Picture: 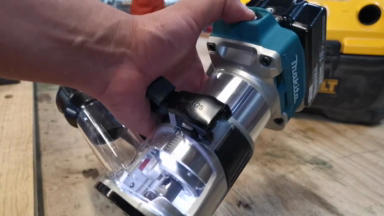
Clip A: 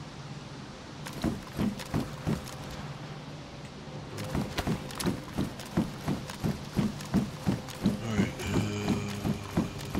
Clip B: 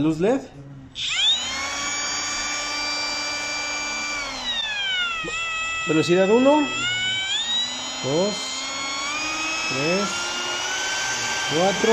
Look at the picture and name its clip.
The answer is B